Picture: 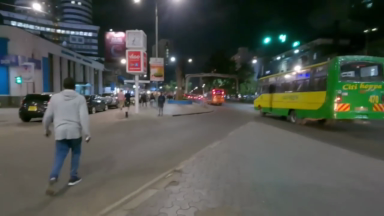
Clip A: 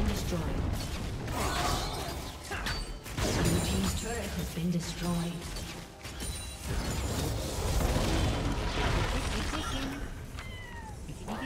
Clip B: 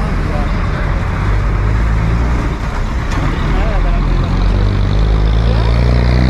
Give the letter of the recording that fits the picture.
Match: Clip B